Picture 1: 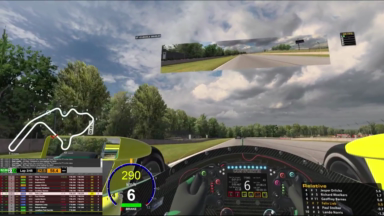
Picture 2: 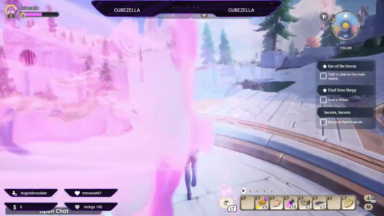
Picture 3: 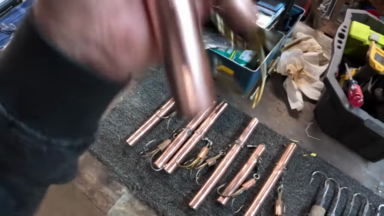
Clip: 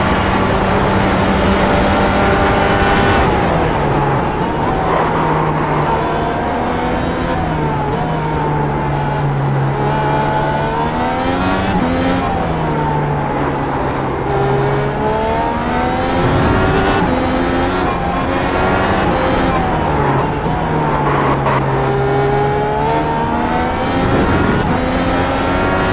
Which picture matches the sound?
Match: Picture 1